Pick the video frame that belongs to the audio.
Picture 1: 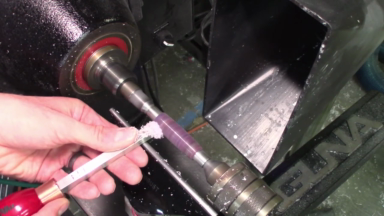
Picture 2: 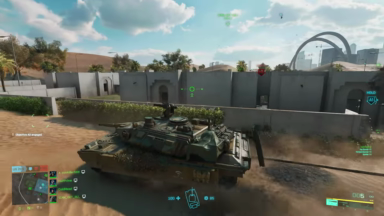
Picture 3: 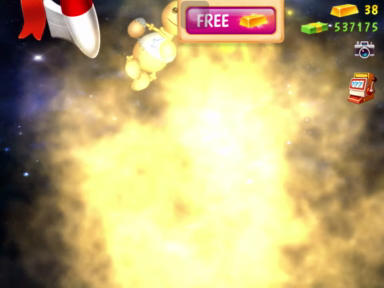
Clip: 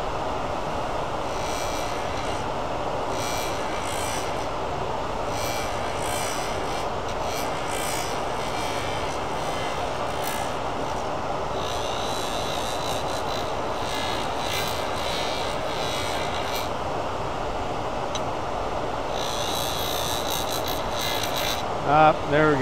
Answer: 1